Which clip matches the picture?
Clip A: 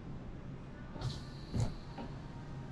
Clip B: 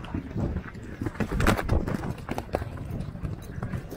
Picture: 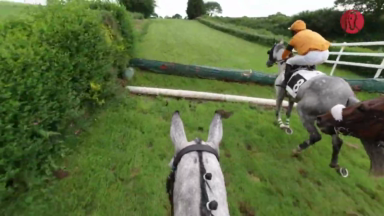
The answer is B